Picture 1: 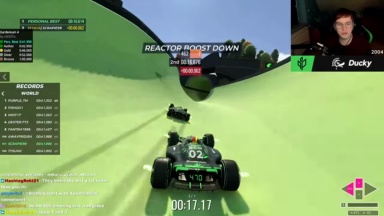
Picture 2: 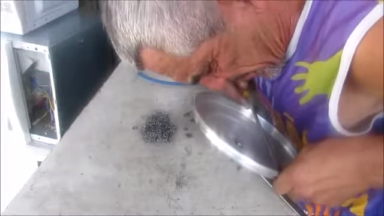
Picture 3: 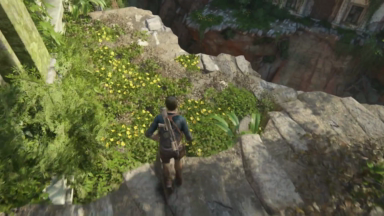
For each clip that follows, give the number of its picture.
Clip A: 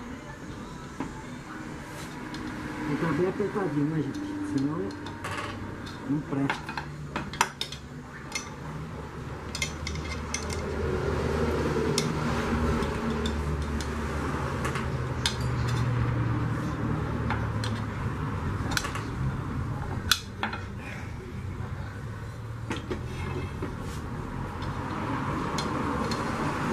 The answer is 2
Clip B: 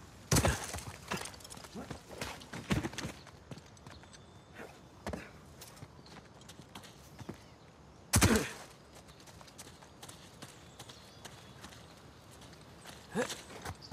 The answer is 3